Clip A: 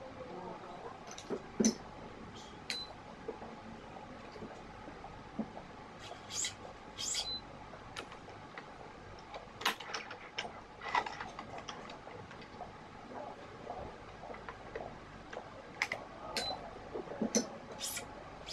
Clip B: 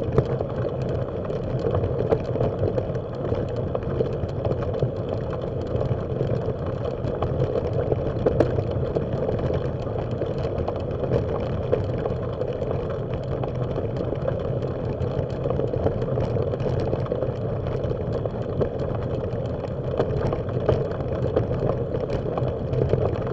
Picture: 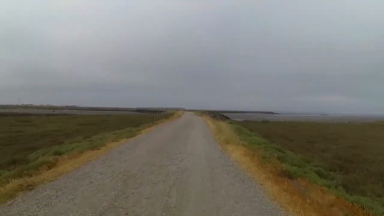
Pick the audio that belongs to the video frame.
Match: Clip B